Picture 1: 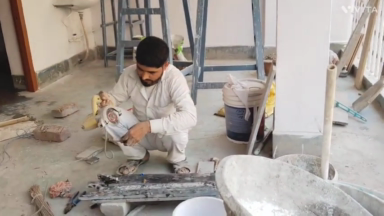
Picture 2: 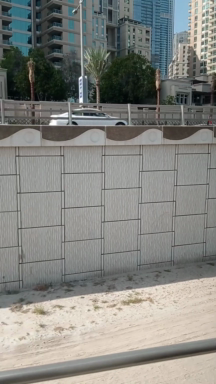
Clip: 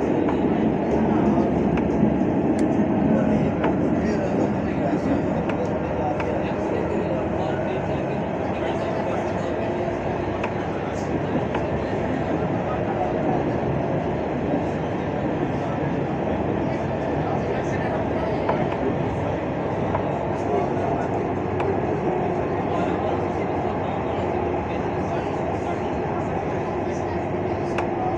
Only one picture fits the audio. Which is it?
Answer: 2